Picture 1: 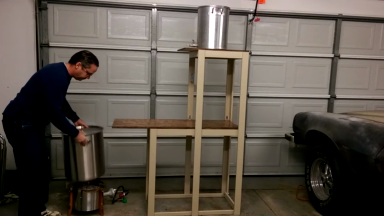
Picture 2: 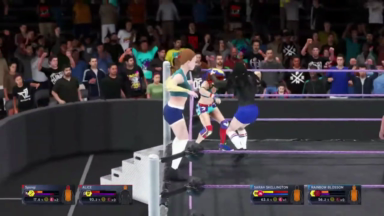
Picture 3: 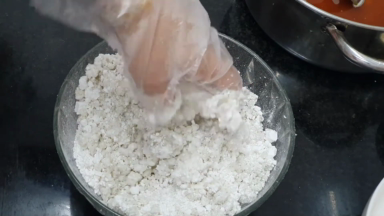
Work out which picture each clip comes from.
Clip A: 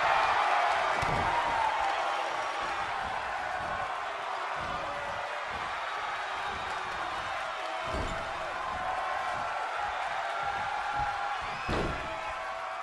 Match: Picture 2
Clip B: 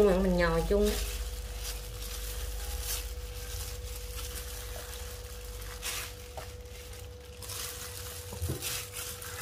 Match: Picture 3